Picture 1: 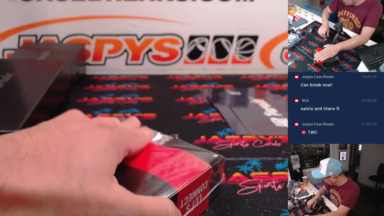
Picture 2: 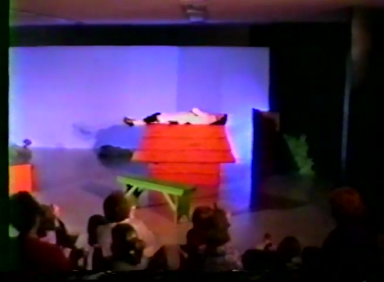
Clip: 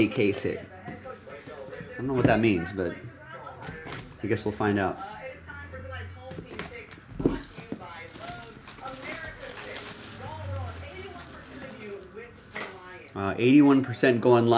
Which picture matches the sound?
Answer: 1